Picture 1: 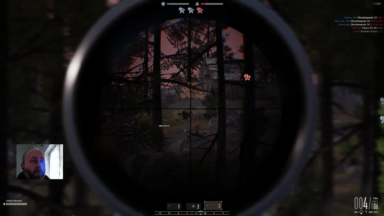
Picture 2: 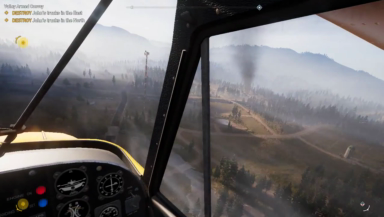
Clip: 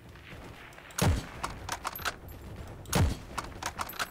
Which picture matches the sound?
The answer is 1